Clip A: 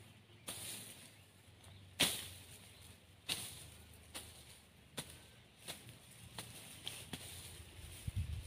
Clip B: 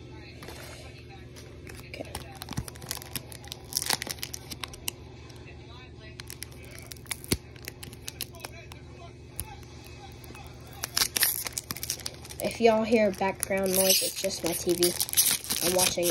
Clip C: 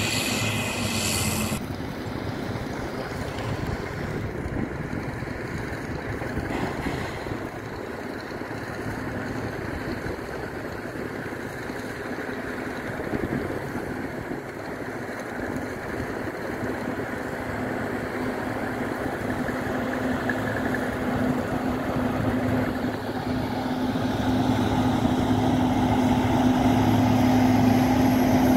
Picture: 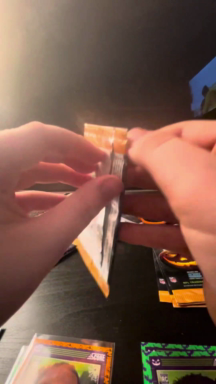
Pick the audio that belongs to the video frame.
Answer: B